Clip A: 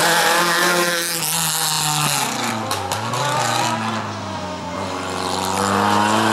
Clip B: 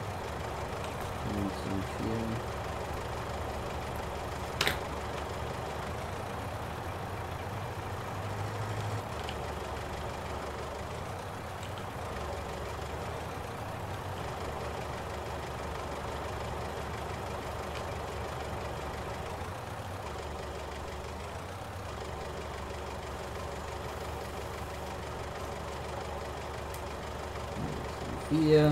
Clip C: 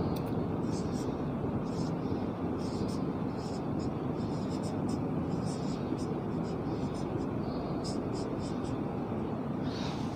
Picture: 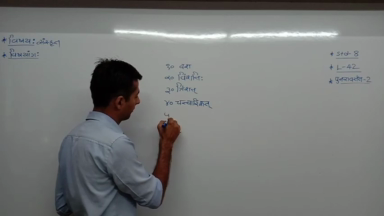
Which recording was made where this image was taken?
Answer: C